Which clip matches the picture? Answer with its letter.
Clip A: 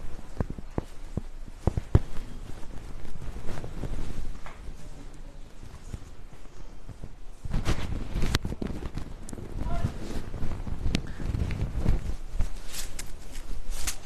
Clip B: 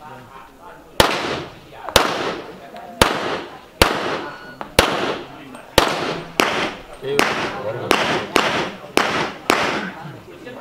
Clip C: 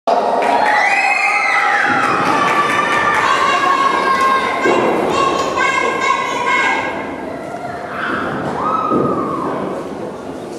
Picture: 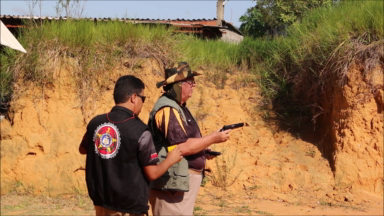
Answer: B